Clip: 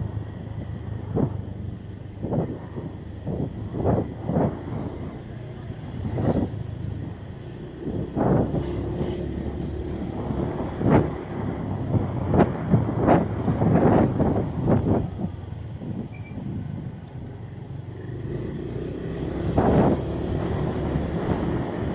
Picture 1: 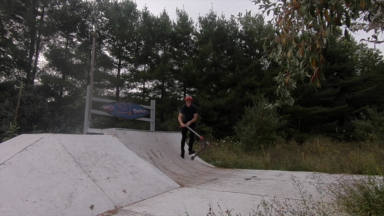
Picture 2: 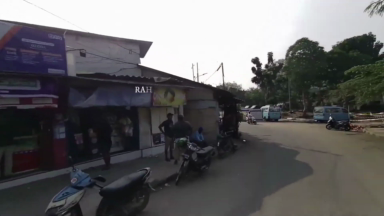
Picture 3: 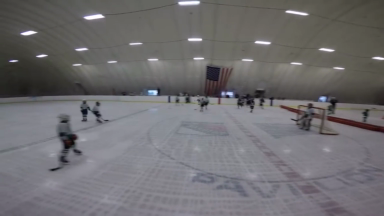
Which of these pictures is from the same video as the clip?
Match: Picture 2